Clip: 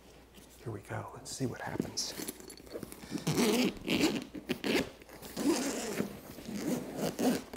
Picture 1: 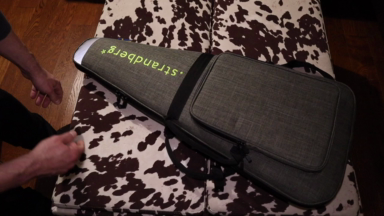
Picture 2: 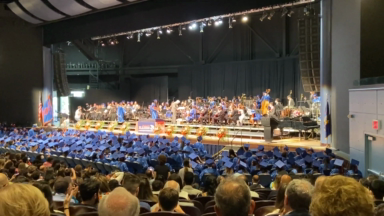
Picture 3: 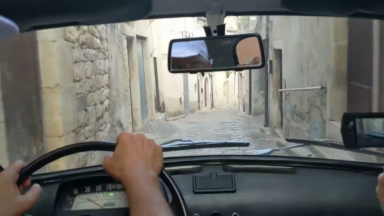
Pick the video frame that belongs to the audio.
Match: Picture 1